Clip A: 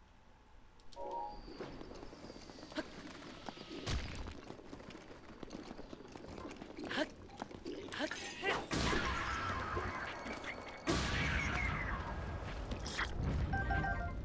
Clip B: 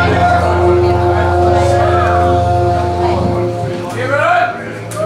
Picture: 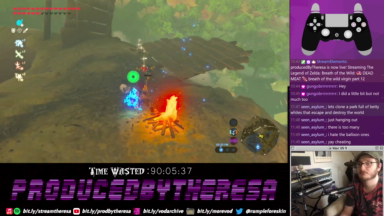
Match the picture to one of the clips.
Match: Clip A